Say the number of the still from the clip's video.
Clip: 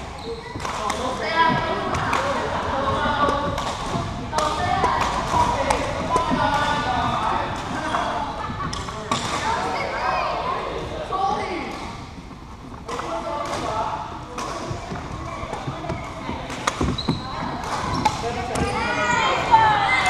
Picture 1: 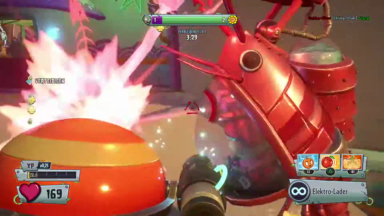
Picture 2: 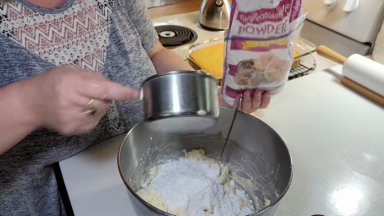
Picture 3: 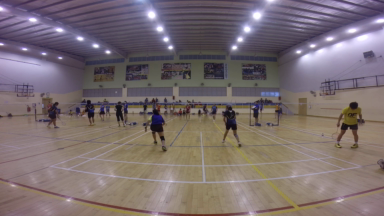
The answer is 3